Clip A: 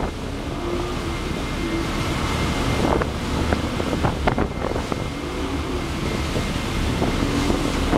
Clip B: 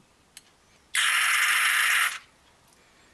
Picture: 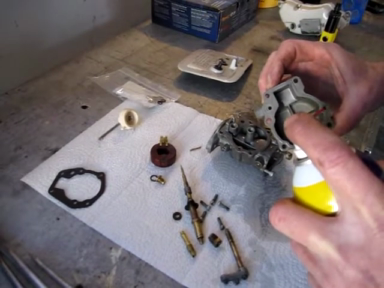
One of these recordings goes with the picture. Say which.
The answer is B